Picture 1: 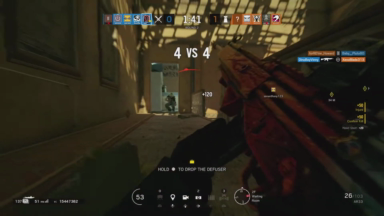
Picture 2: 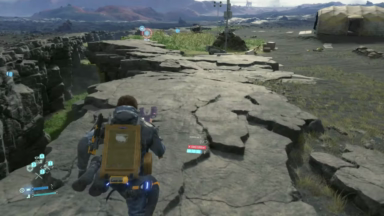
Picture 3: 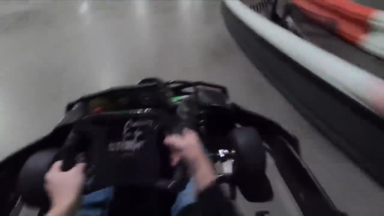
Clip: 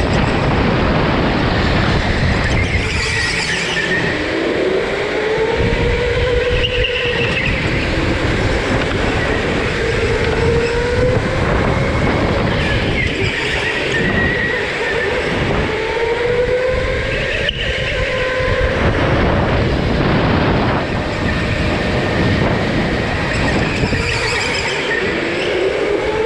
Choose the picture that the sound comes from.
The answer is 3